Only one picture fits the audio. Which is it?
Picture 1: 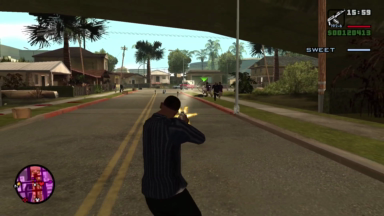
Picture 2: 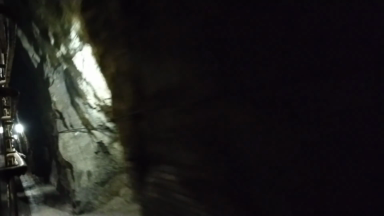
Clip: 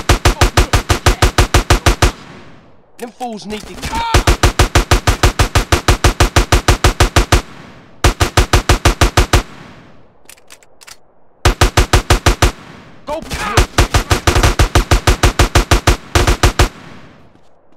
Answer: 1